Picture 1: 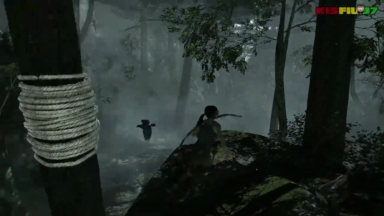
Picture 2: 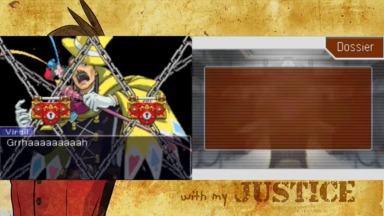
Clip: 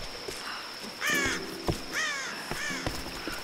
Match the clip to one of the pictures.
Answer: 1